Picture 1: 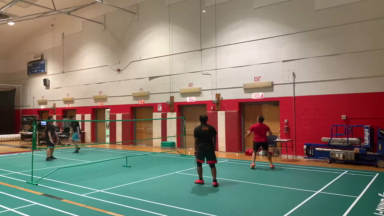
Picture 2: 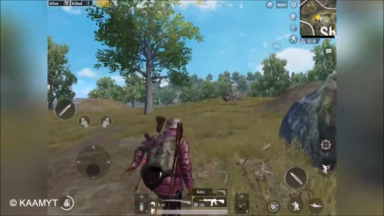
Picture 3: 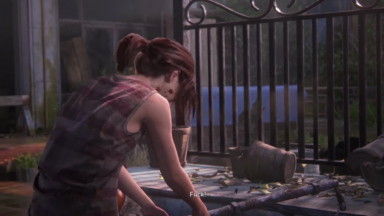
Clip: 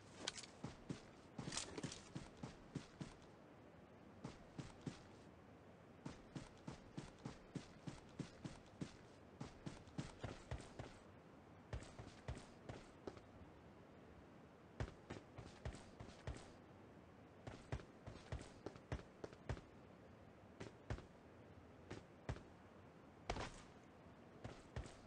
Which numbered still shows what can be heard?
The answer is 2